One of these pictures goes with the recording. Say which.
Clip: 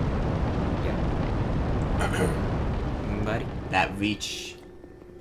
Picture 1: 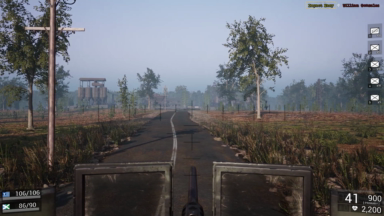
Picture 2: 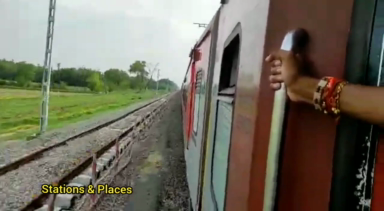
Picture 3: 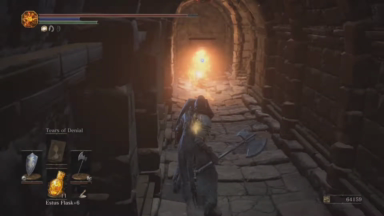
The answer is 3